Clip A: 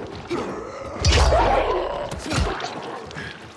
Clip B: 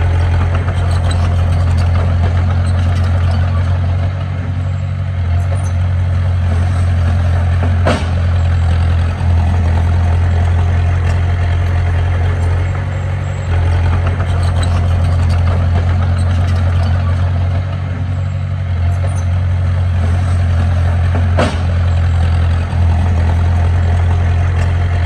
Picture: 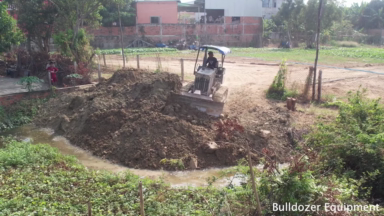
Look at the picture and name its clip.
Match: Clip B